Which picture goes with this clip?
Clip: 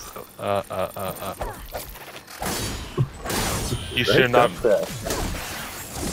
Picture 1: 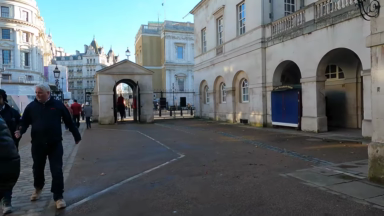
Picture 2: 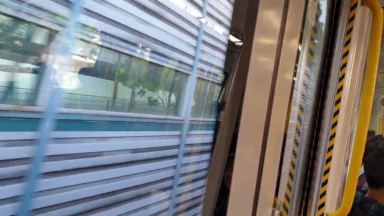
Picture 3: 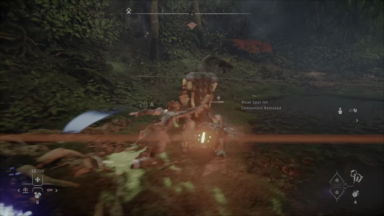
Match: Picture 3